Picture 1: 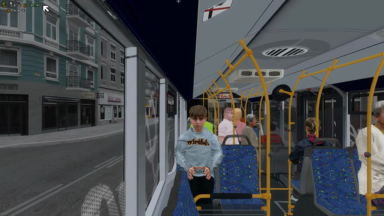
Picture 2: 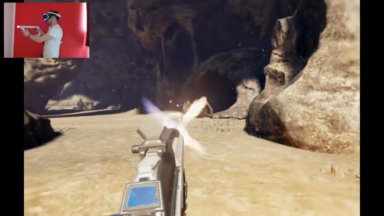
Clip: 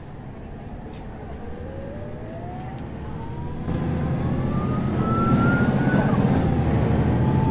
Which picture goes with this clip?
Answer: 1